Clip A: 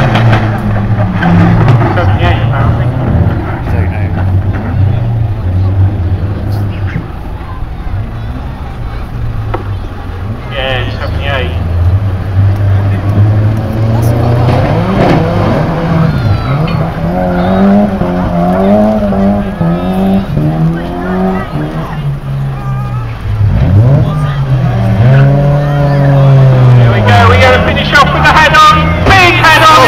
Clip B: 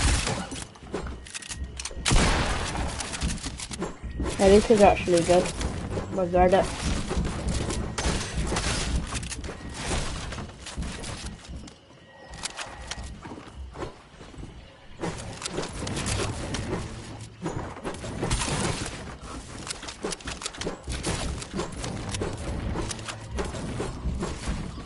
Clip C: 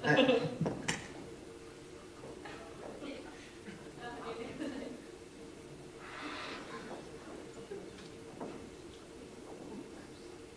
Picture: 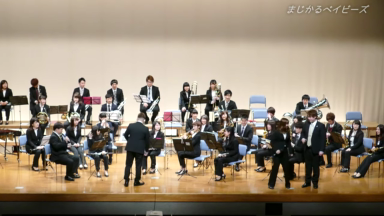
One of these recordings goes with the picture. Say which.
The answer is C